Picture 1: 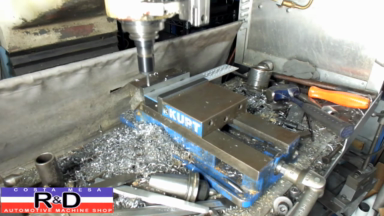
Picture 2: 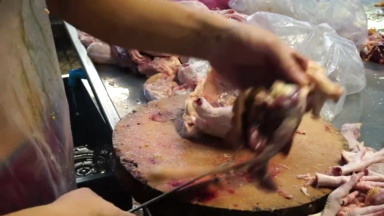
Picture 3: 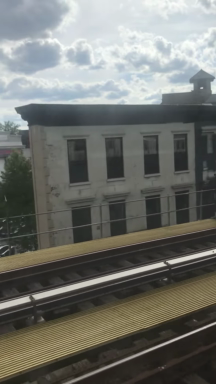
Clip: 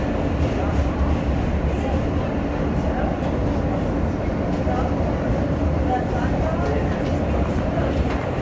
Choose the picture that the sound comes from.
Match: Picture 3